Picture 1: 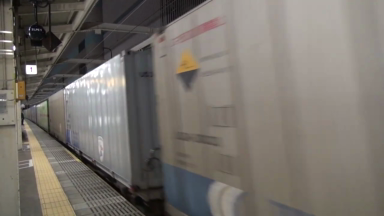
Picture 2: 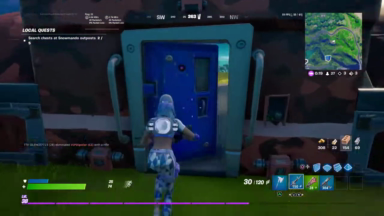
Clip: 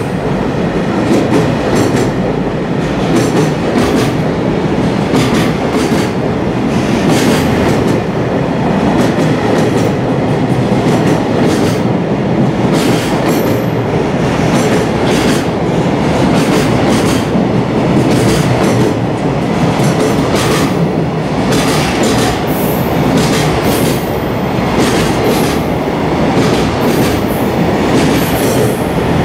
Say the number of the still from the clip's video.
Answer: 1